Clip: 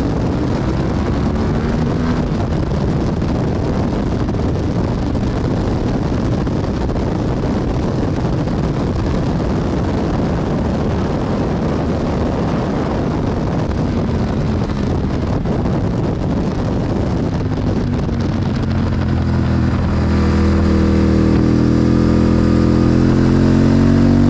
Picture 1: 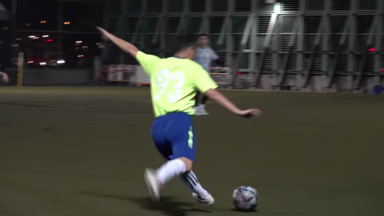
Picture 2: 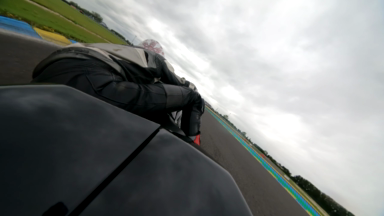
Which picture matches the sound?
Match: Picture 2